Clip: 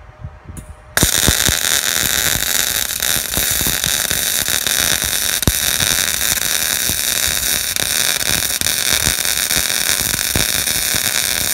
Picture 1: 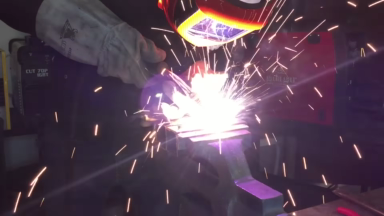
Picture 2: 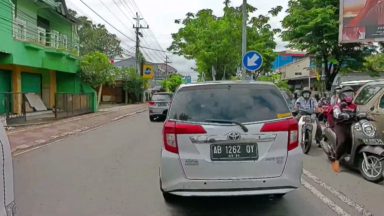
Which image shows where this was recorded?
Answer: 1